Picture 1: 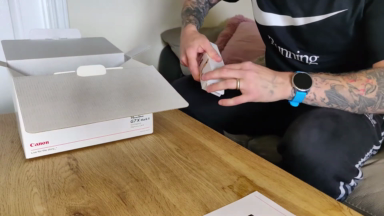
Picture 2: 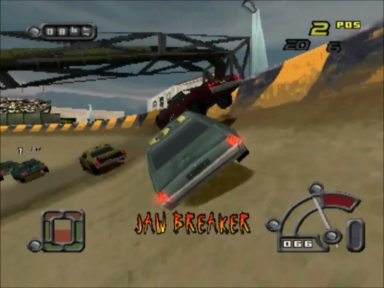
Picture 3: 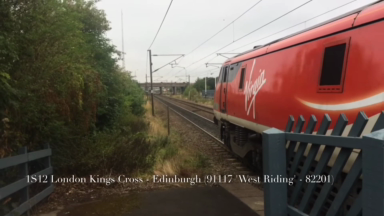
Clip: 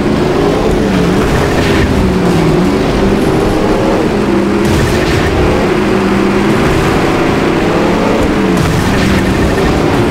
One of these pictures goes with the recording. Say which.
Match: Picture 2